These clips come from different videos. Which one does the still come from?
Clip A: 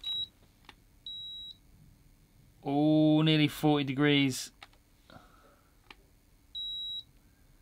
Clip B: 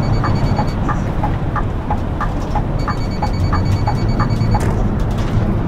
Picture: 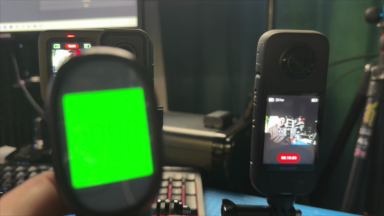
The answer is A